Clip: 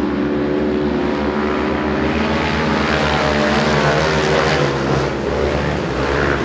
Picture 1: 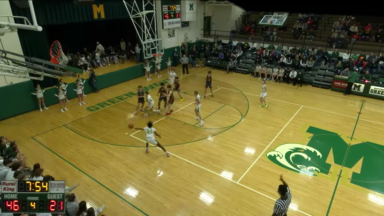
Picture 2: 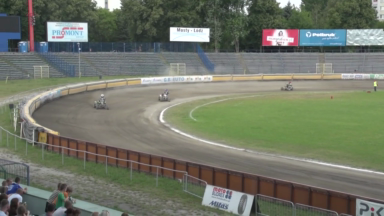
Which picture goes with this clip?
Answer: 2